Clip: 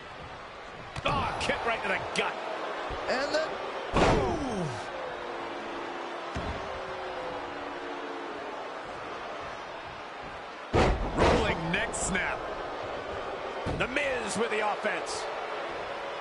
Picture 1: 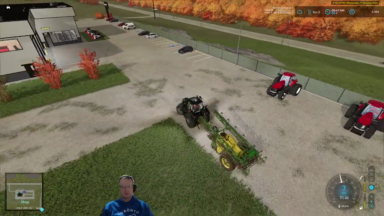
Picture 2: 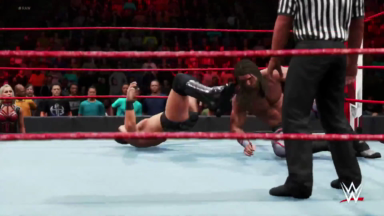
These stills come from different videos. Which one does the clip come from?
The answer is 2